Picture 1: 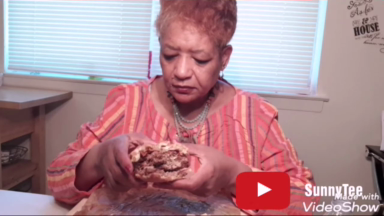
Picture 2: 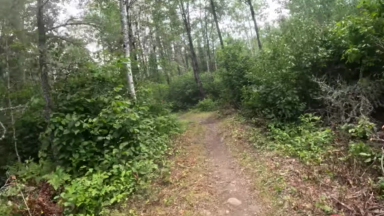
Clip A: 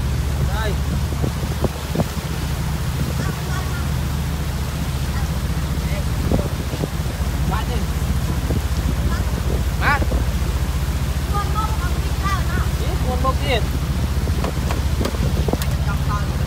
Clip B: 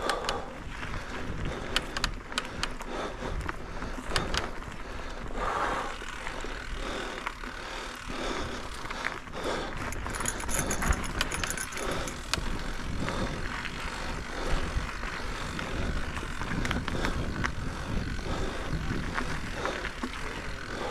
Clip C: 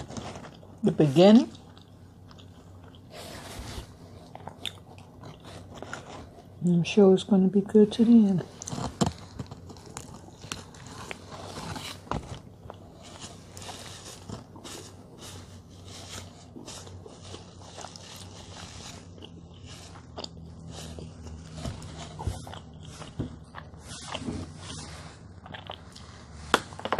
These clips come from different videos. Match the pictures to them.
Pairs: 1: C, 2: B